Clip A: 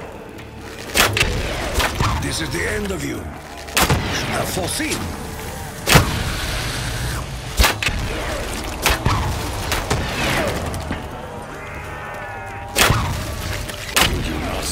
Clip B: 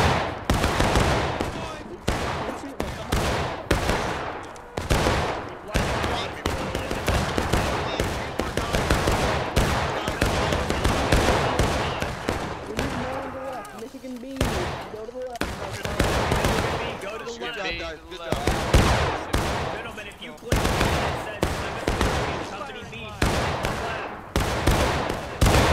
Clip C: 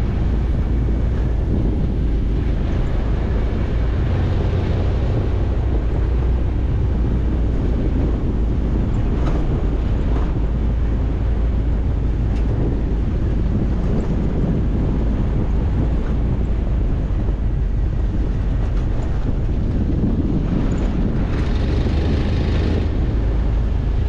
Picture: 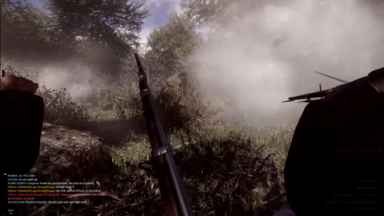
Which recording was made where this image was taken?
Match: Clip B